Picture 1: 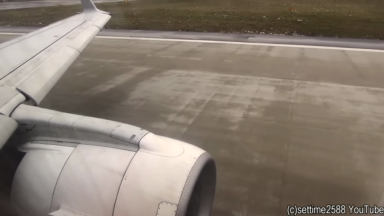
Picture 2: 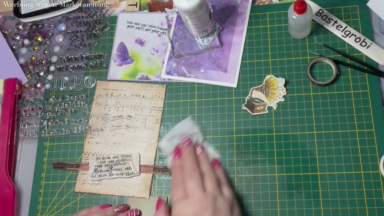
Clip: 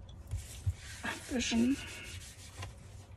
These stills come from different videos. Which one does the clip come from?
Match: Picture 2